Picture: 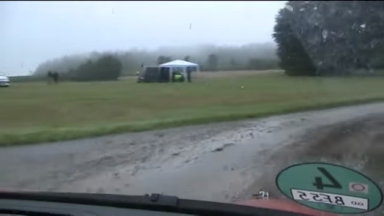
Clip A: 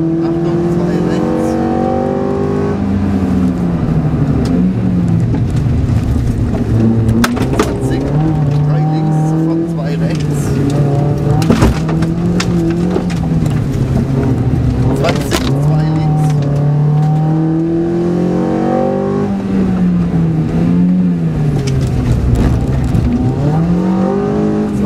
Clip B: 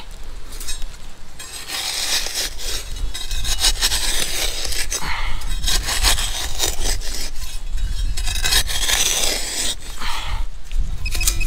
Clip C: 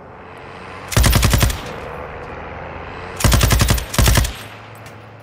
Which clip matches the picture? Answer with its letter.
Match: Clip A